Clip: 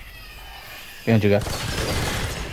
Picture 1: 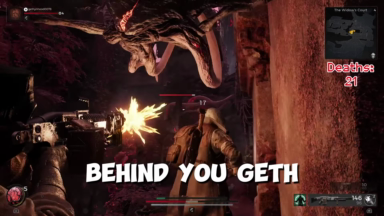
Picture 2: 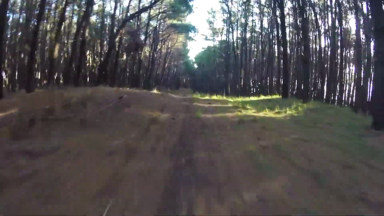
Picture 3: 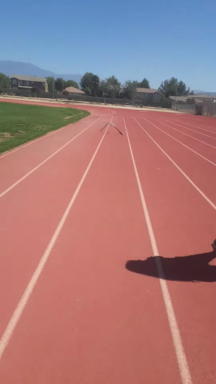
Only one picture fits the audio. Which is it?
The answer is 1